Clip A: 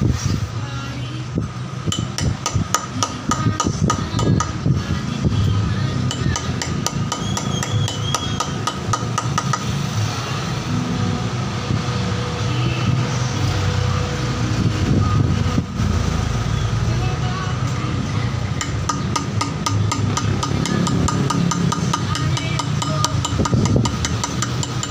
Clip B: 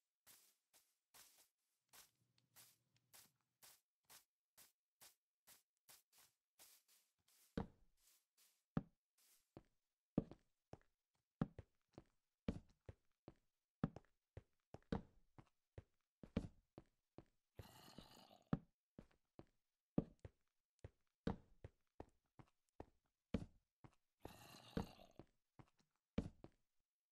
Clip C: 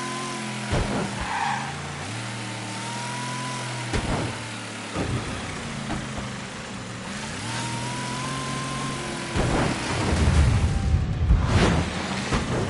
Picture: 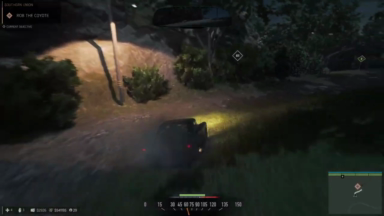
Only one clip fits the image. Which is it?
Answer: C